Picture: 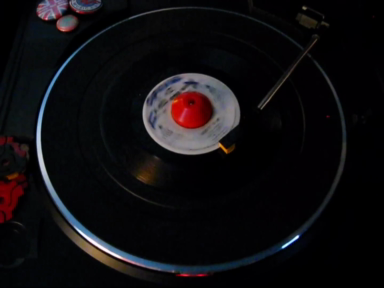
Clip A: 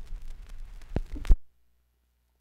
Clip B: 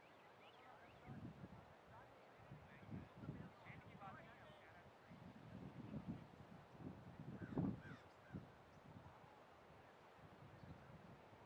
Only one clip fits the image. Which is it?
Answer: A